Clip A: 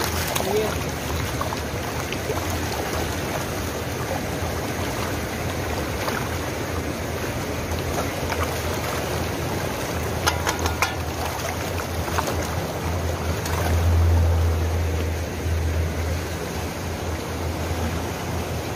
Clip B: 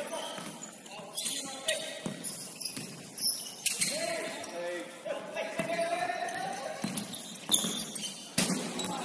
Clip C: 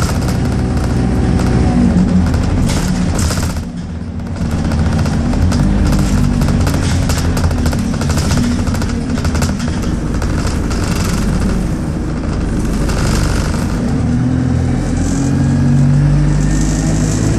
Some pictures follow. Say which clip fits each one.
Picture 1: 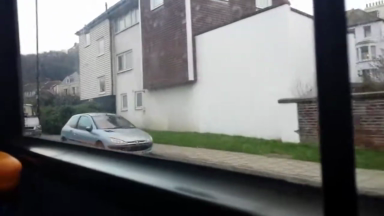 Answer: C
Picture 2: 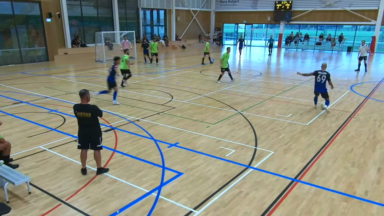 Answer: B